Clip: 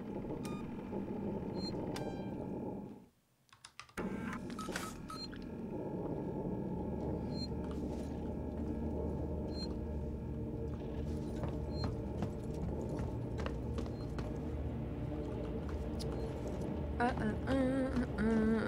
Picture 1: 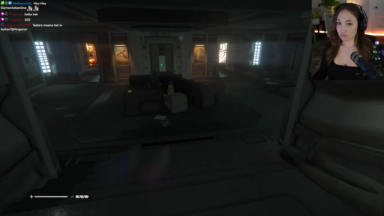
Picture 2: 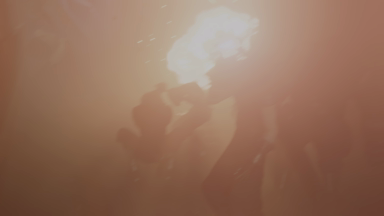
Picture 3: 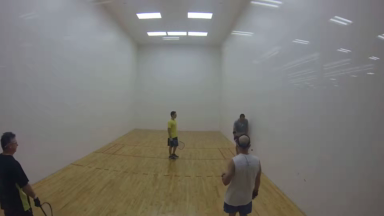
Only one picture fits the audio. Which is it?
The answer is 1